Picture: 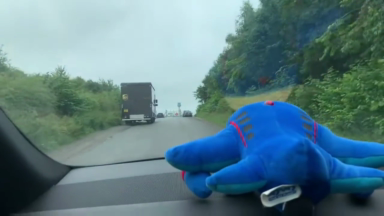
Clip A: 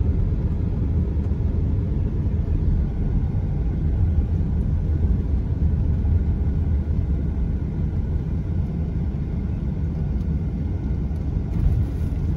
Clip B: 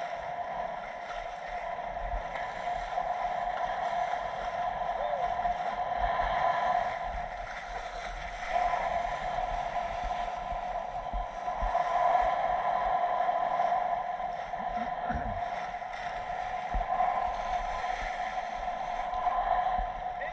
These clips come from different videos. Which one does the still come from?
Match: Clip A